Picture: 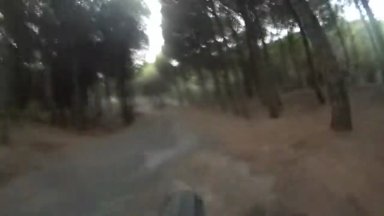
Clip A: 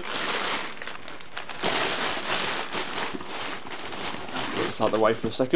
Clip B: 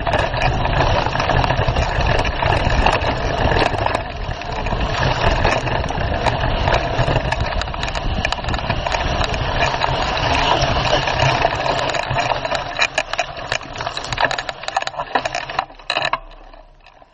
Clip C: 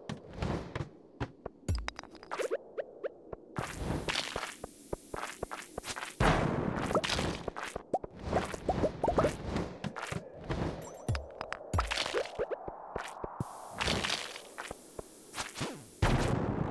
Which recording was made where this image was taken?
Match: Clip B